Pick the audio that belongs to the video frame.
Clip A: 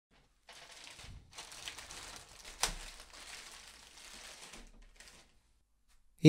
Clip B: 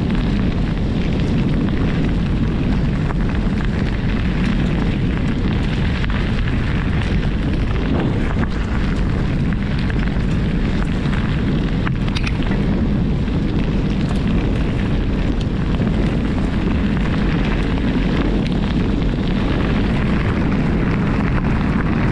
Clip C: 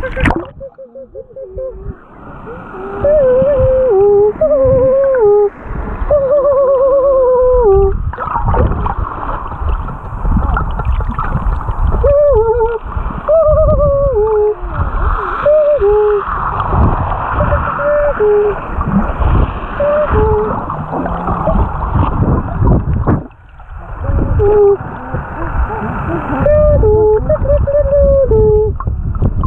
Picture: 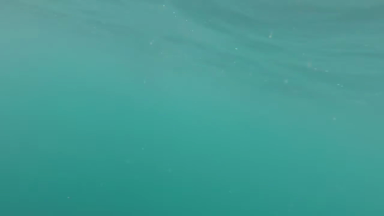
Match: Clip C